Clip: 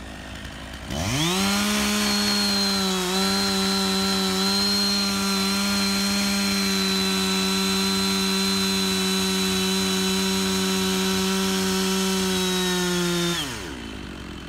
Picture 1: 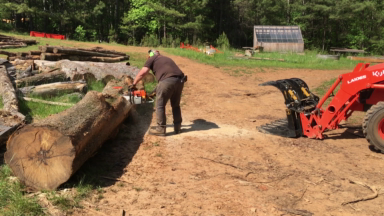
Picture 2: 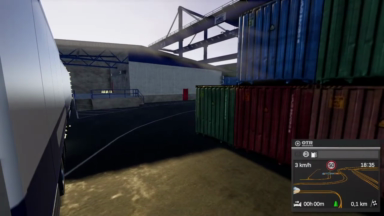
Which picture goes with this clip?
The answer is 1